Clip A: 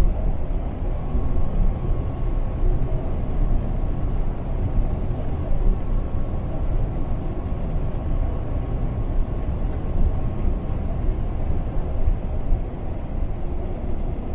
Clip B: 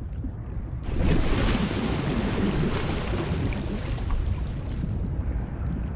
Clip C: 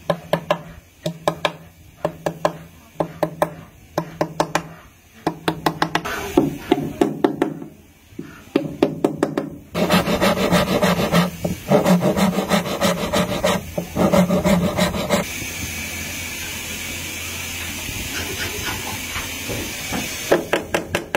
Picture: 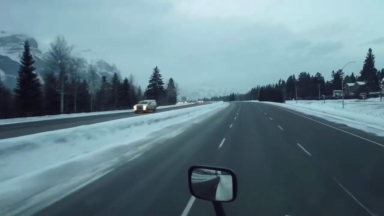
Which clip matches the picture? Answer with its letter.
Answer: A